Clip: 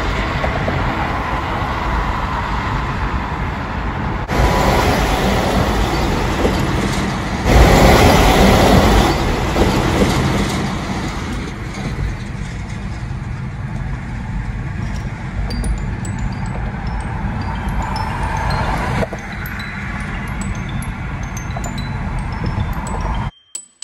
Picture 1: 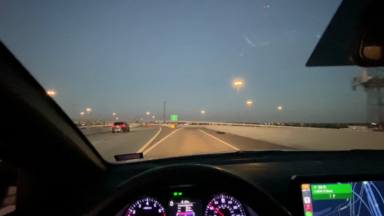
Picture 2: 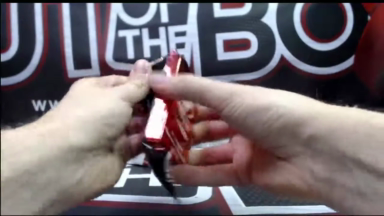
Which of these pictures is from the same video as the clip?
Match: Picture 1